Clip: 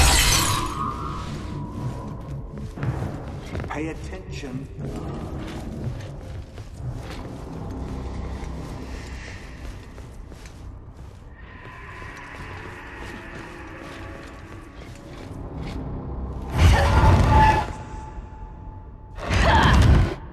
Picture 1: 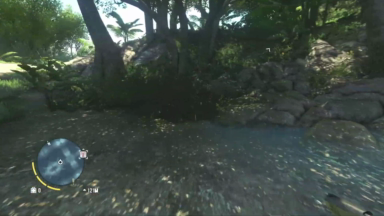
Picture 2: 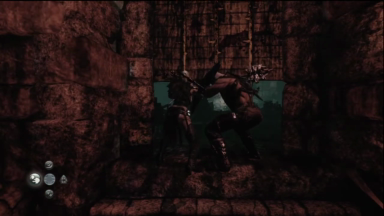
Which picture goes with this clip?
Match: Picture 2